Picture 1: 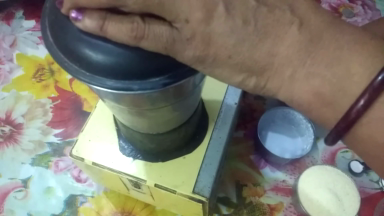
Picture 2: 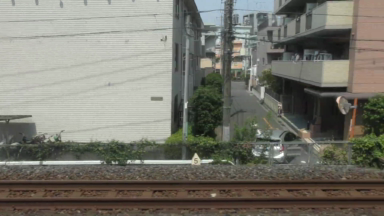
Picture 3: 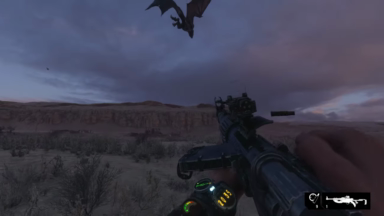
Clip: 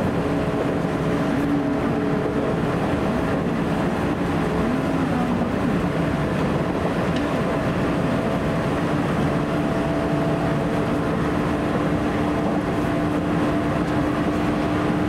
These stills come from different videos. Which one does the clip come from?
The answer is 2